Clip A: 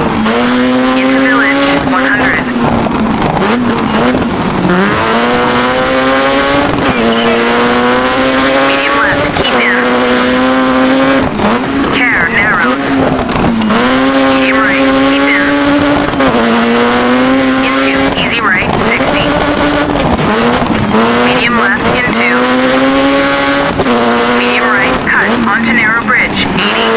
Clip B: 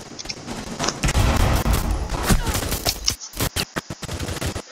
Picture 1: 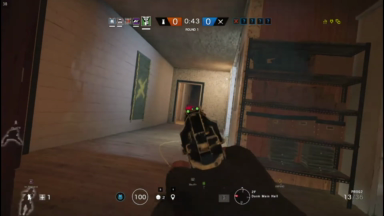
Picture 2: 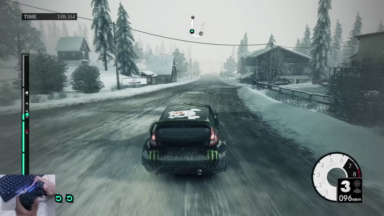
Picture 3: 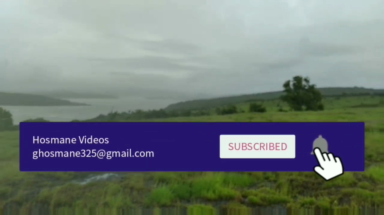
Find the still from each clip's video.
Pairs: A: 2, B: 1